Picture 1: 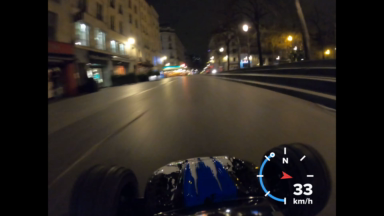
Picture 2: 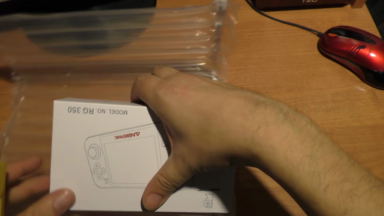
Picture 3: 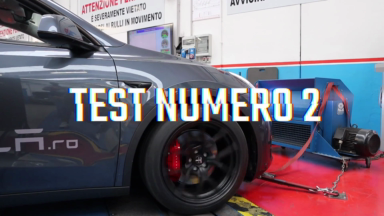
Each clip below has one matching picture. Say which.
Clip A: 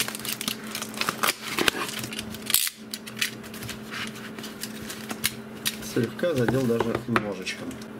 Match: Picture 2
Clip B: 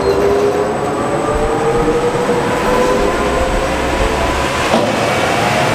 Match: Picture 3